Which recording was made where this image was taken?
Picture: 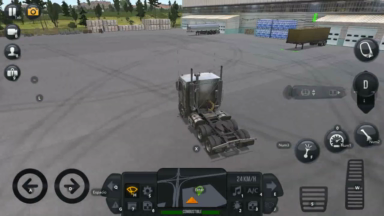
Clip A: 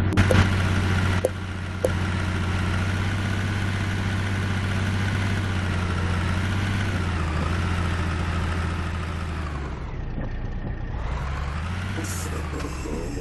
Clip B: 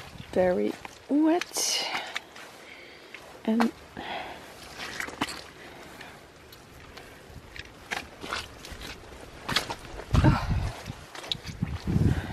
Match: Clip A